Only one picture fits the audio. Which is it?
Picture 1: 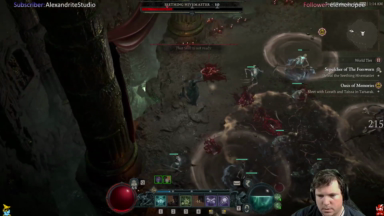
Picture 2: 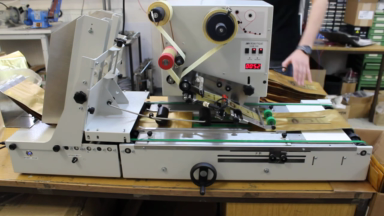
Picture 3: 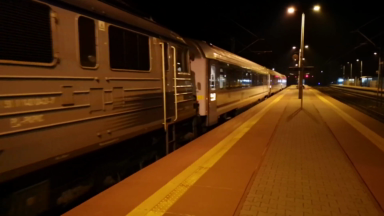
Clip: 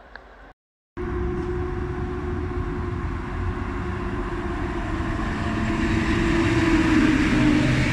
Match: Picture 3